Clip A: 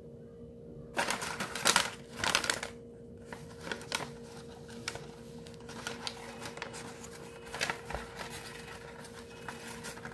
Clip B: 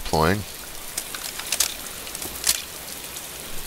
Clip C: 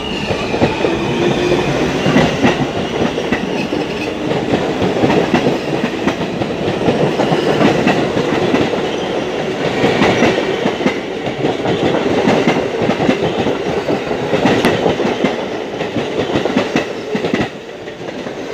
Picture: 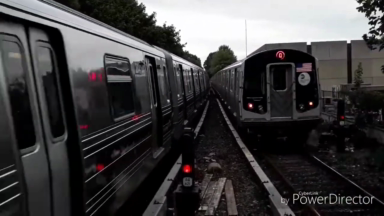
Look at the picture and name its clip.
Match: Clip C